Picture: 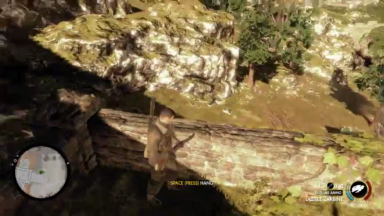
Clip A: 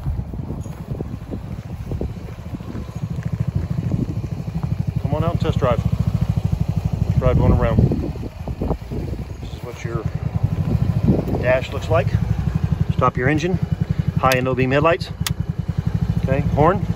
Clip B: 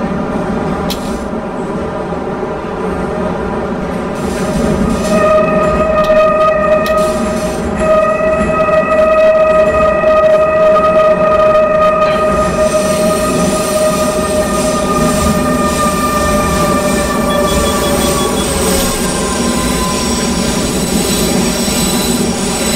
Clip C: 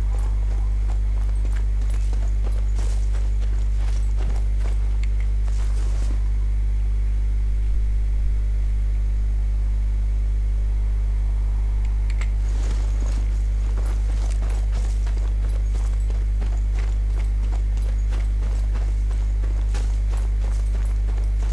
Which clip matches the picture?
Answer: C